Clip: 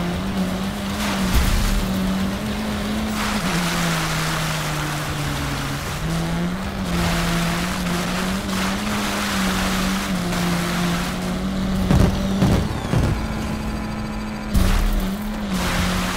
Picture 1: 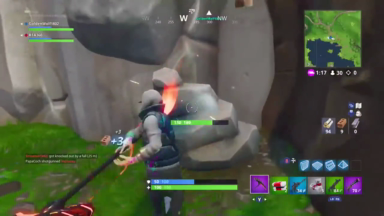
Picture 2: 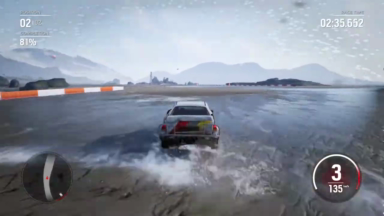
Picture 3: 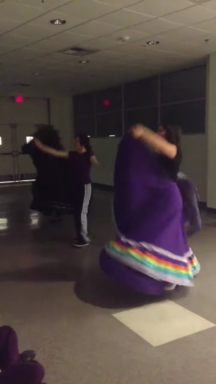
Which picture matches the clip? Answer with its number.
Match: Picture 2